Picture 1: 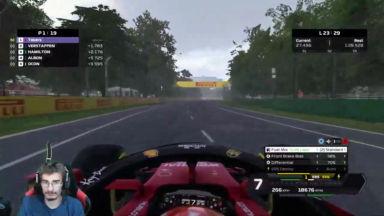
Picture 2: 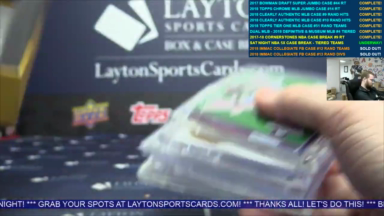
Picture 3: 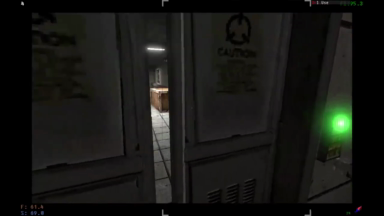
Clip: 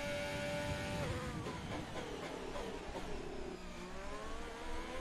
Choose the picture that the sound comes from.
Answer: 1